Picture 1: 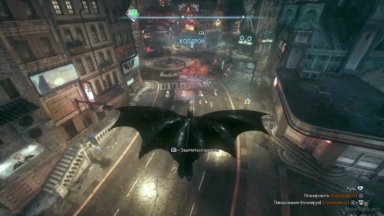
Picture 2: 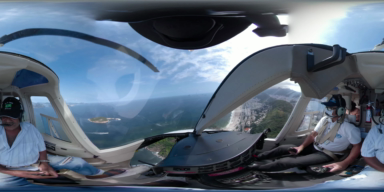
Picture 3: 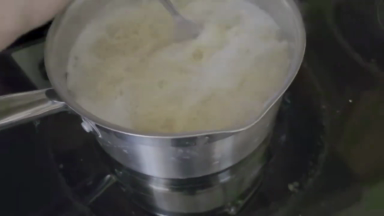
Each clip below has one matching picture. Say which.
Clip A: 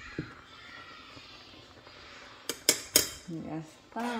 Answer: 3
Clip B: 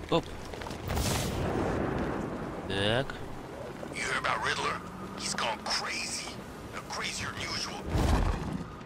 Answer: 1